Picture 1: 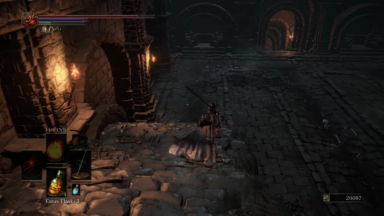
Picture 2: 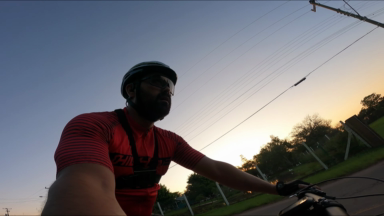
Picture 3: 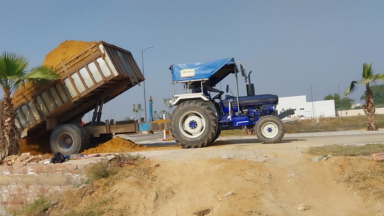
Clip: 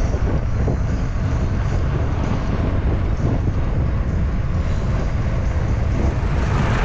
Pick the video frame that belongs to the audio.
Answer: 2